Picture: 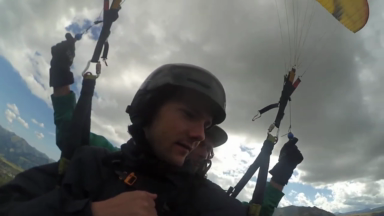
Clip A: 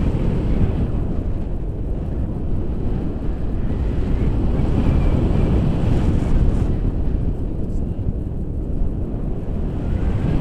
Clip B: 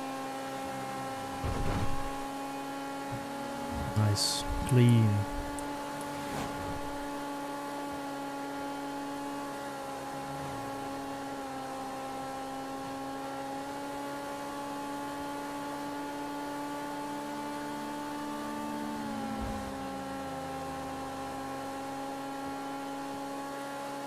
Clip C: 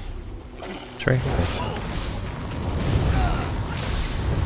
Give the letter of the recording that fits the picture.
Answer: A